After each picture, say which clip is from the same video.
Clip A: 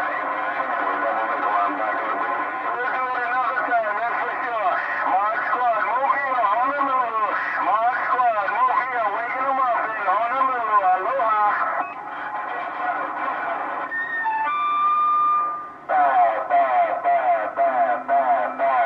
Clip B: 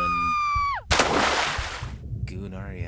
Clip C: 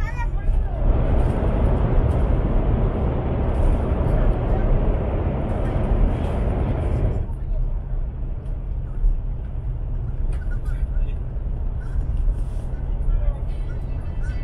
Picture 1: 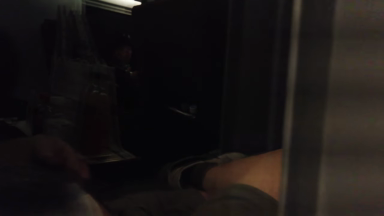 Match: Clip C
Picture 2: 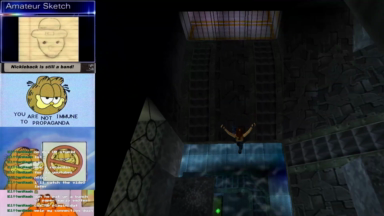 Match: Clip B